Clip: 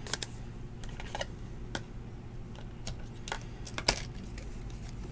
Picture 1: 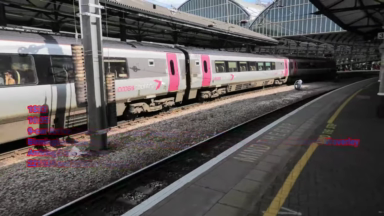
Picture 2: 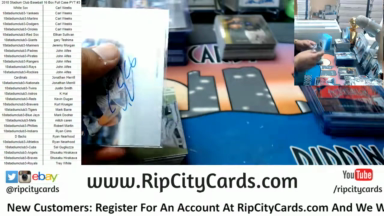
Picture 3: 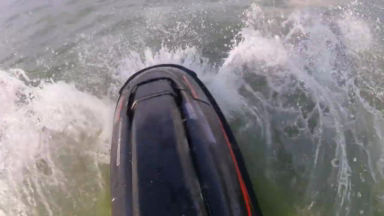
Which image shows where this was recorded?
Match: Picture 2